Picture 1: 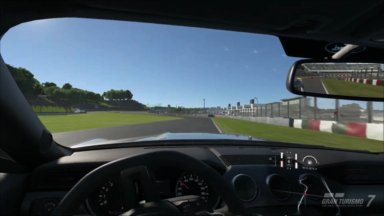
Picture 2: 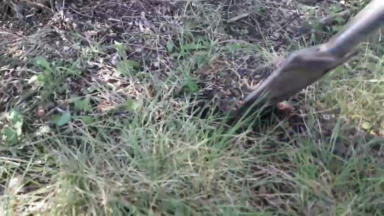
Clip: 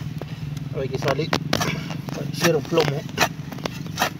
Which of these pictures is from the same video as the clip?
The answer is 2